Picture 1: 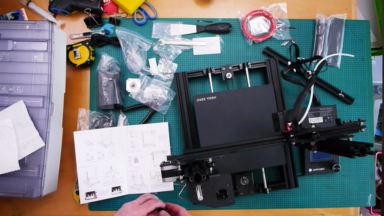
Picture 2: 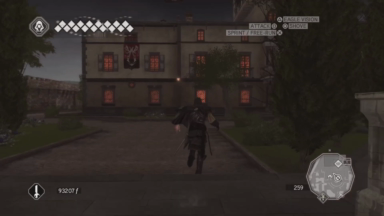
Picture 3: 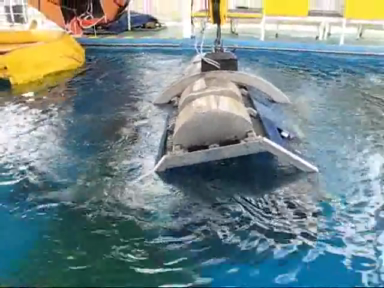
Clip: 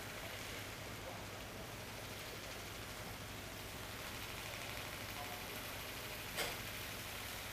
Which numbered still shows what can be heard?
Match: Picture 3